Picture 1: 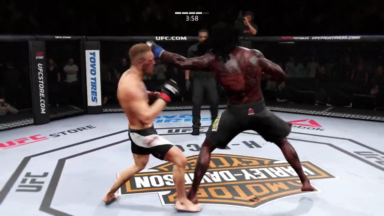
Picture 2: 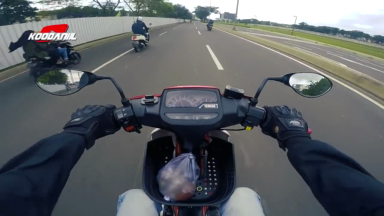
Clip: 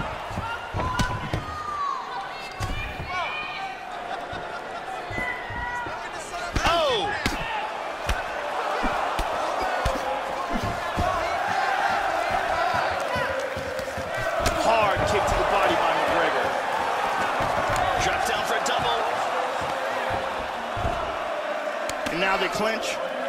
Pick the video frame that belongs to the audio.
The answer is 1